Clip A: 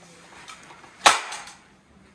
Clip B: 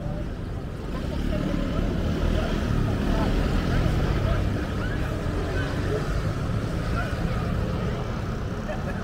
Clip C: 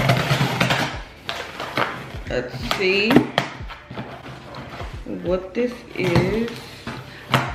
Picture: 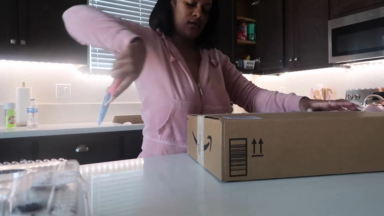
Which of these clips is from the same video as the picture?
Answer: C